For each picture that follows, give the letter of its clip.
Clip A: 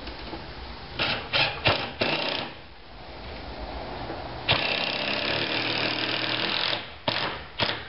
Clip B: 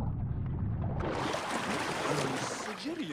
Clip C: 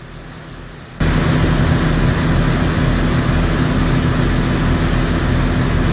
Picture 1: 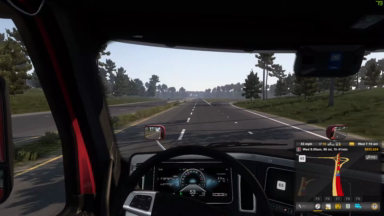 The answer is C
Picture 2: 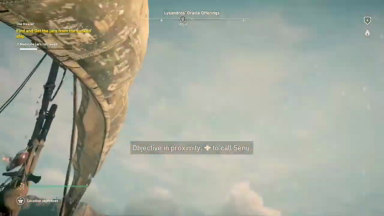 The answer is B